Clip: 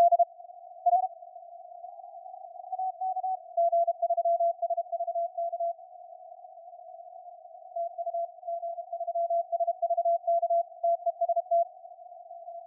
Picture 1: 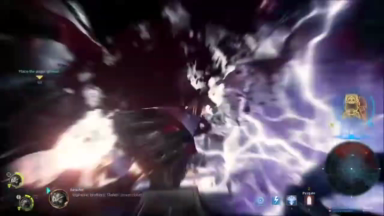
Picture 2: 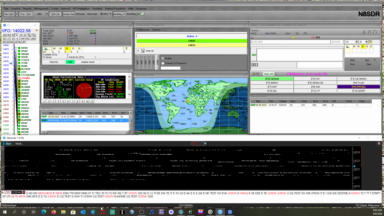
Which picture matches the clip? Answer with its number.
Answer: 2